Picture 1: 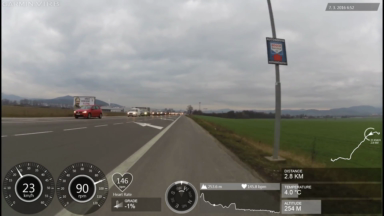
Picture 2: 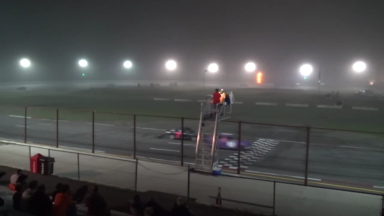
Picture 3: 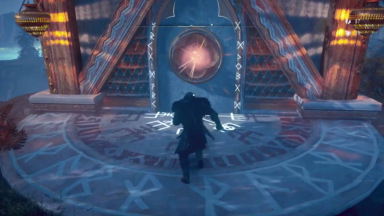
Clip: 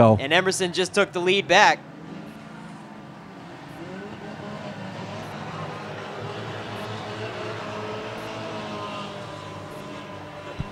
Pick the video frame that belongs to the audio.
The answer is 2